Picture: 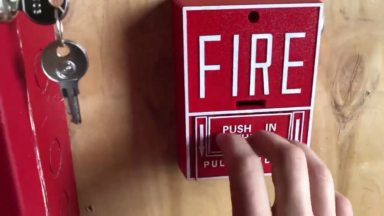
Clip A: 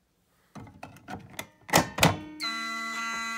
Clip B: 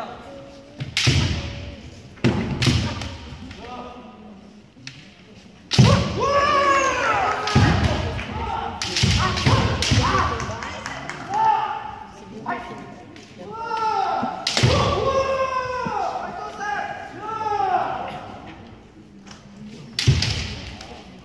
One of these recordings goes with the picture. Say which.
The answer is A